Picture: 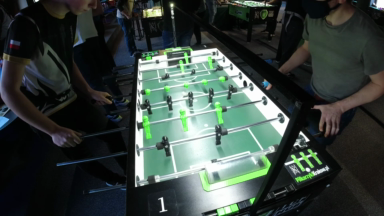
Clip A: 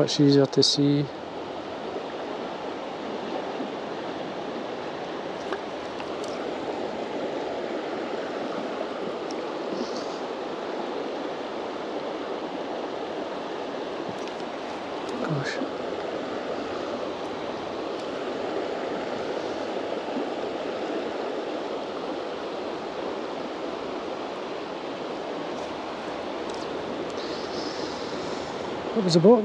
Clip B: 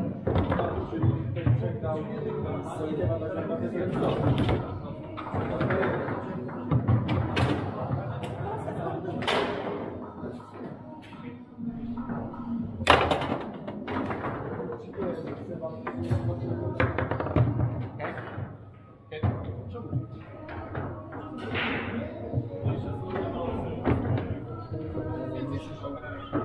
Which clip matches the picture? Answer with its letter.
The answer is B